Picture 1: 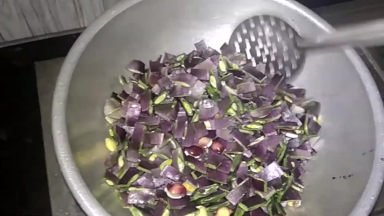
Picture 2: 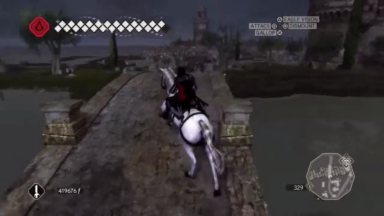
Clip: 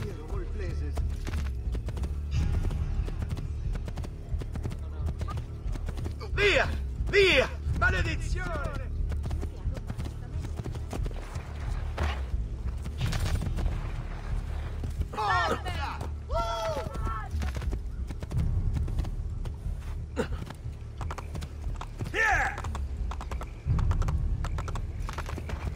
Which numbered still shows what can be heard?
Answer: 2